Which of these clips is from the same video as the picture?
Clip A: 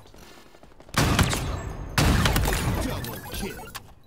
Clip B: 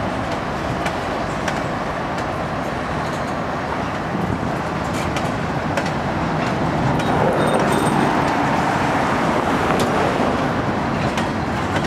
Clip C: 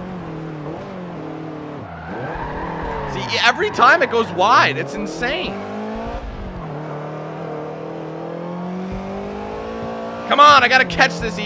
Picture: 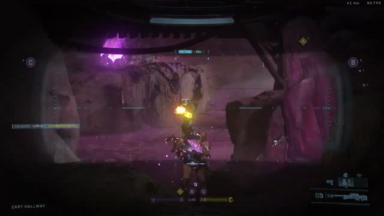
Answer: A